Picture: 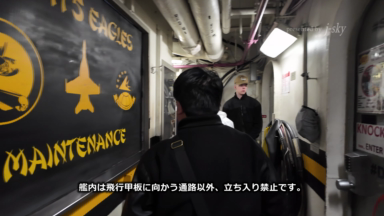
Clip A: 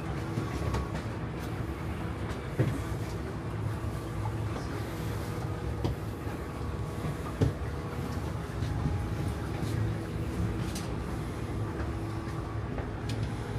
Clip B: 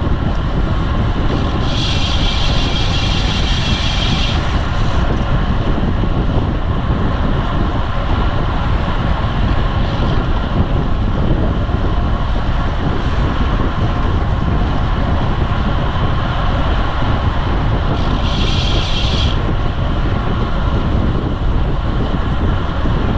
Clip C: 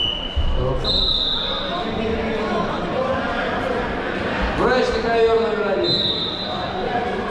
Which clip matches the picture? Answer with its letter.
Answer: A